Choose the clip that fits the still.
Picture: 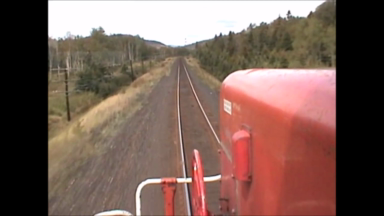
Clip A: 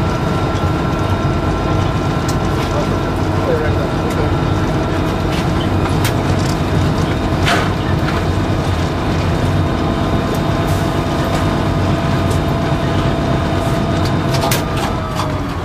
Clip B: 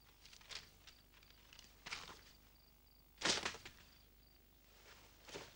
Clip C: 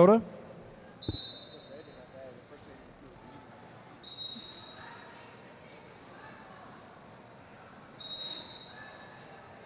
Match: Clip A